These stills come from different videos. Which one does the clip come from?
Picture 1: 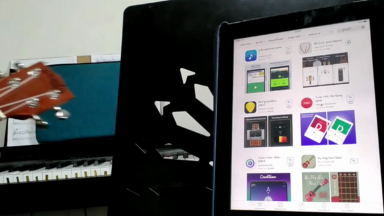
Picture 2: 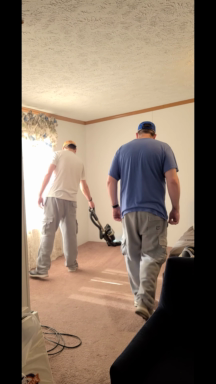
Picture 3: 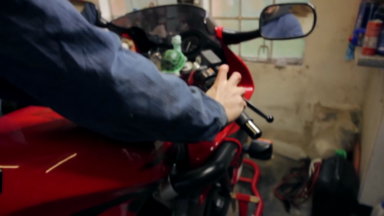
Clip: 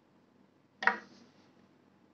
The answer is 1